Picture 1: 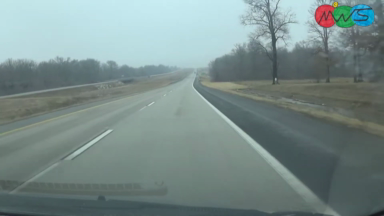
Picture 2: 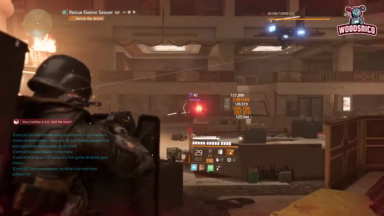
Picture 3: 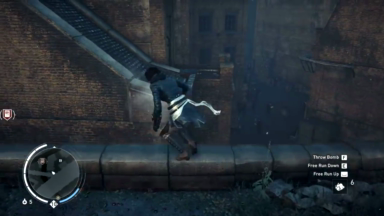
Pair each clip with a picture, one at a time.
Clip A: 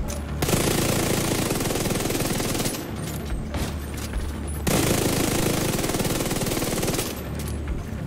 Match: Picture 2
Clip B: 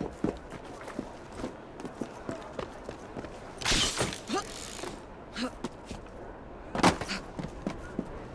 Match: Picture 3